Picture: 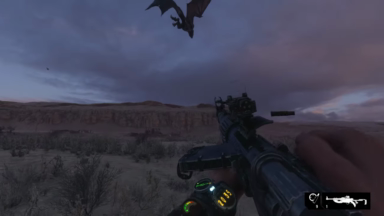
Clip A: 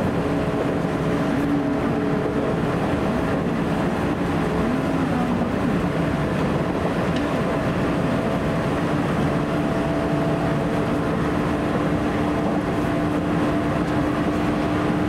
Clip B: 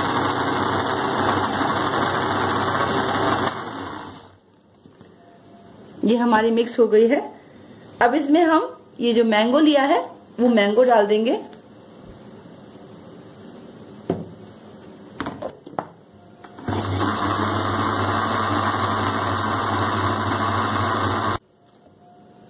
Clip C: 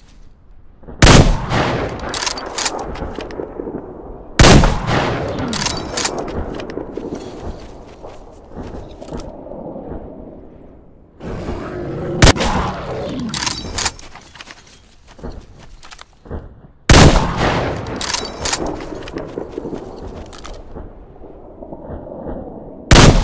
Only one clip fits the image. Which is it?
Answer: C